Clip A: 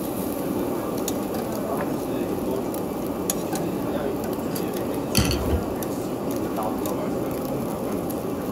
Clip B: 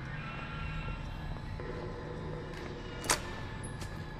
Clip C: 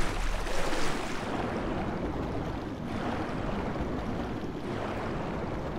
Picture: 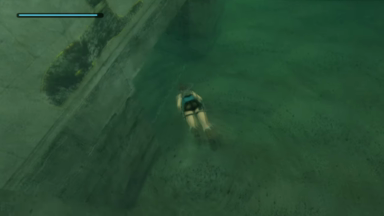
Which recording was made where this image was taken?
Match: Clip C